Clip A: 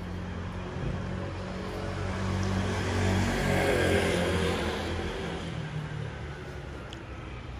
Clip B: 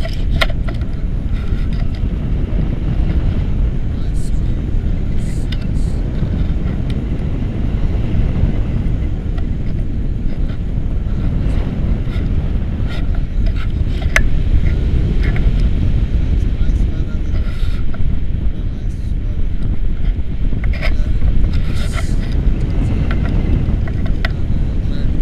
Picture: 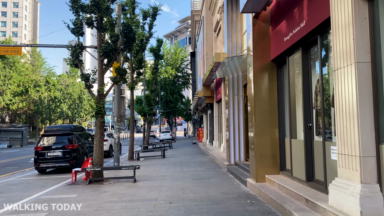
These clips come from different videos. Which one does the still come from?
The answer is A